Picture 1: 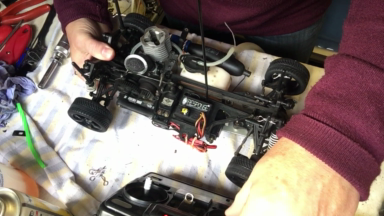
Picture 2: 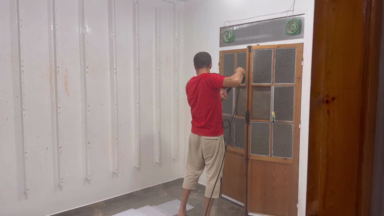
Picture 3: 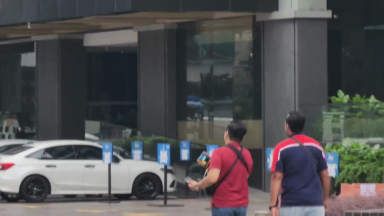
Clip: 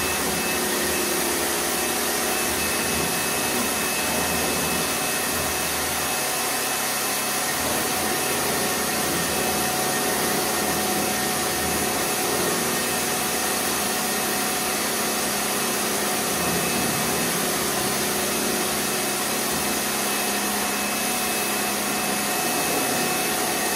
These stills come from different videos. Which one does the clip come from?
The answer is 2